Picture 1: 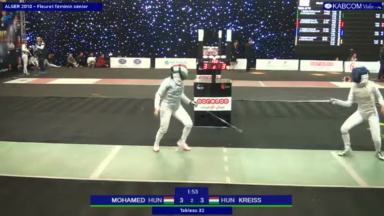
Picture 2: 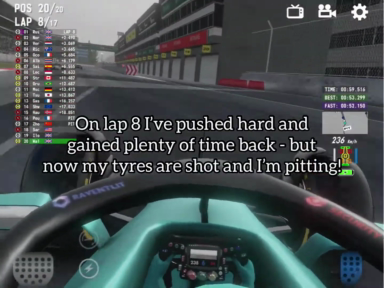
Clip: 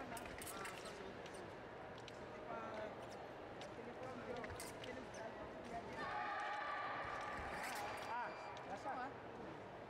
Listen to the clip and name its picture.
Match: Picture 1